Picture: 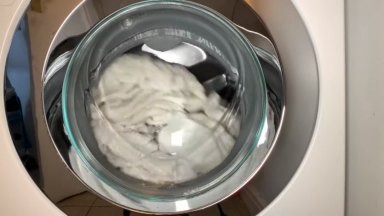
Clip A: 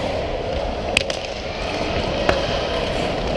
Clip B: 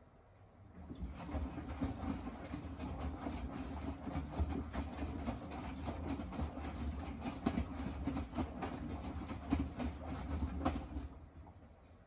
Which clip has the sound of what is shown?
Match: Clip B